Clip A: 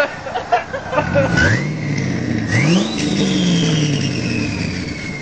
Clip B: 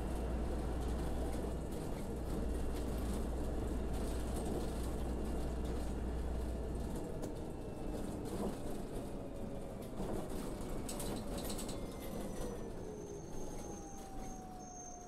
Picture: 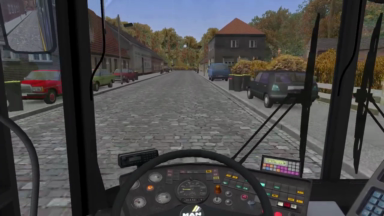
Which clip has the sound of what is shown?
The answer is B